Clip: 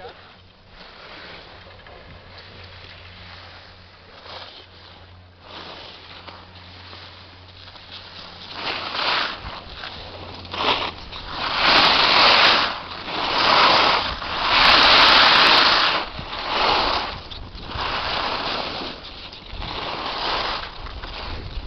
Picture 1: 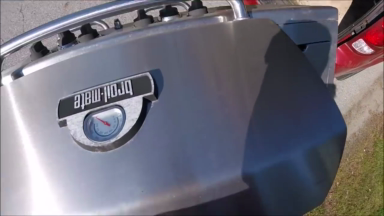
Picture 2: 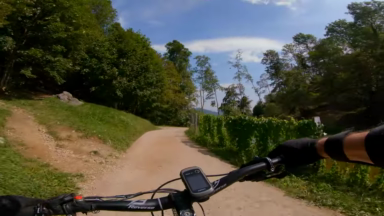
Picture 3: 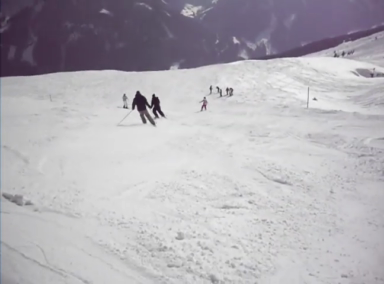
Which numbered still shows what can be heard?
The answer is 3